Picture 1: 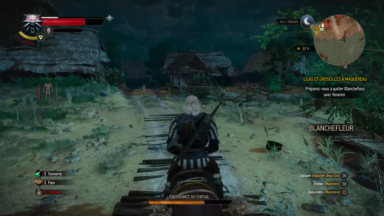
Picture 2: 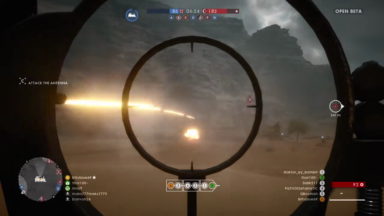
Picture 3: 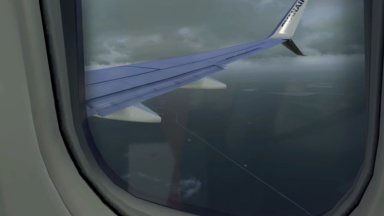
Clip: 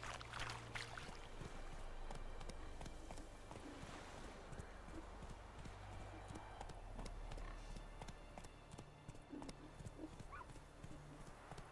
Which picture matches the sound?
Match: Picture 1